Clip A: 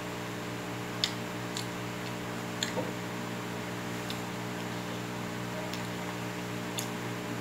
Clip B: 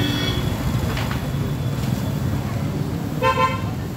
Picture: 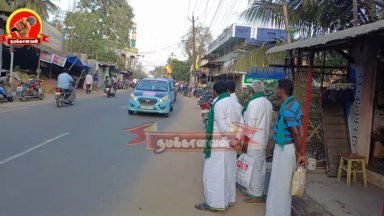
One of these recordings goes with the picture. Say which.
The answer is B